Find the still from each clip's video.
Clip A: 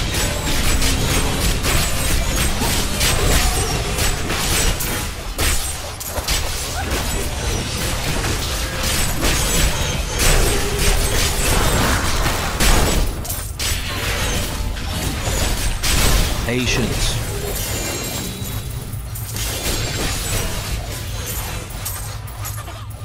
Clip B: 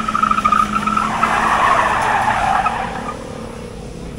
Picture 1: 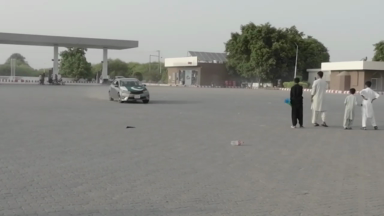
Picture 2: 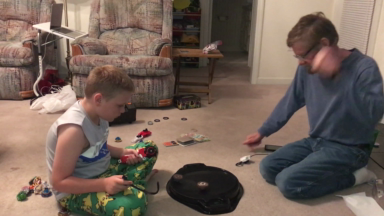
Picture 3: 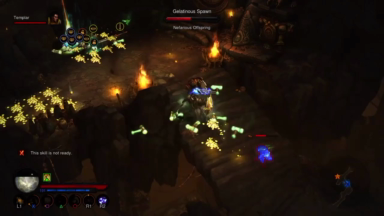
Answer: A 3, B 1